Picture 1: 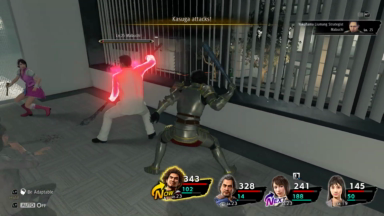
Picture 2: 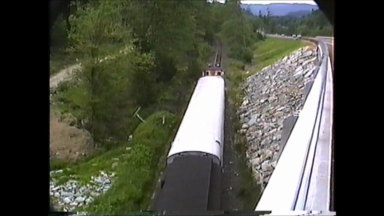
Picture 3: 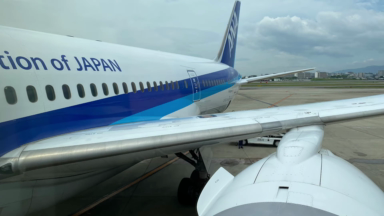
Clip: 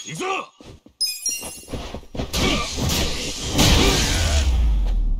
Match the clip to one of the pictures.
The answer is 1